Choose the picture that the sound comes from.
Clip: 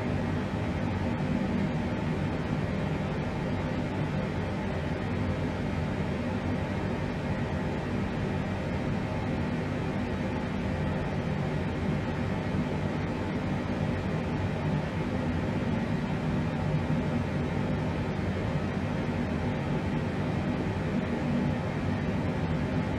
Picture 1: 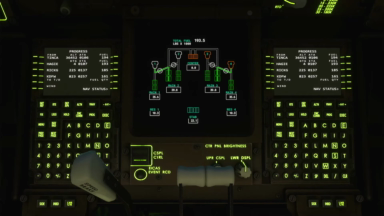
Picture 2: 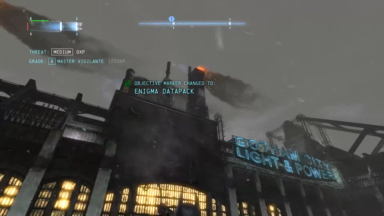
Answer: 1